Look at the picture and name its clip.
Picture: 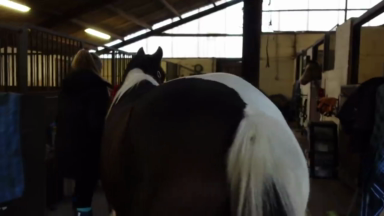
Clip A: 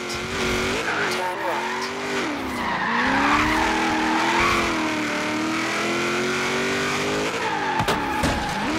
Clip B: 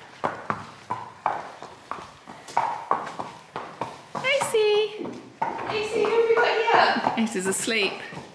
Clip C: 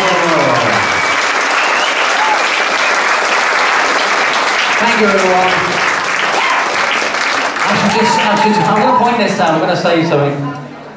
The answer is B